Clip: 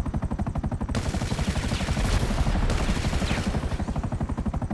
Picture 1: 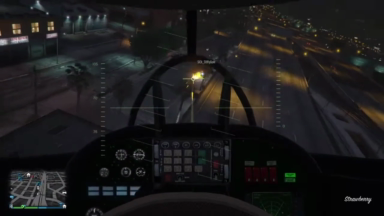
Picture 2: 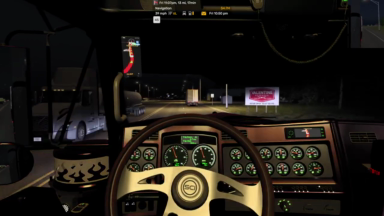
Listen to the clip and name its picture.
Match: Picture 1